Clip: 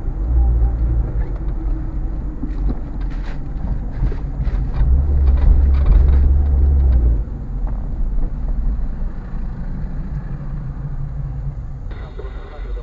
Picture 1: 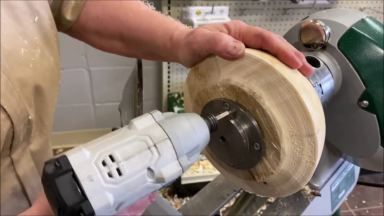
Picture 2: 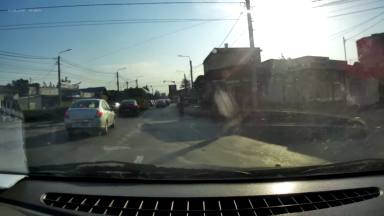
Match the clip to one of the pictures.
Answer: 2